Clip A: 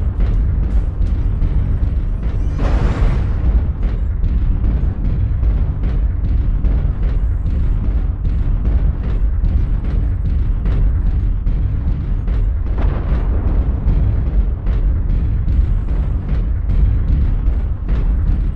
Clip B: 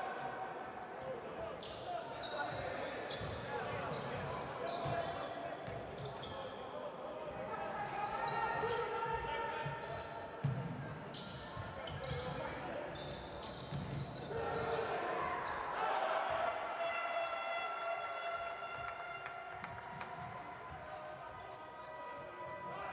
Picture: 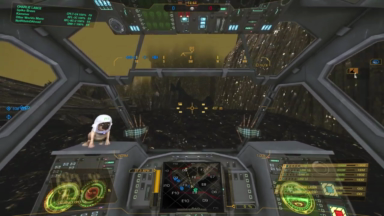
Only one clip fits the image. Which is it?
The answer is A